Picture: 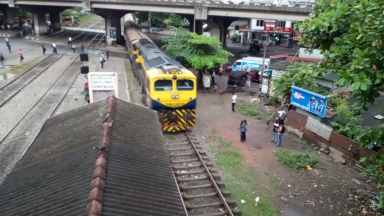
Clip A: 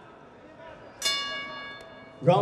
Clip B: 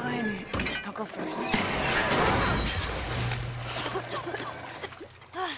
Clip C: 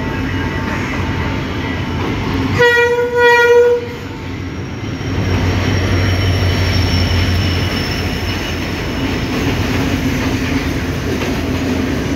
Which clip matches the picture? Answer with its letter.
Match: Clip C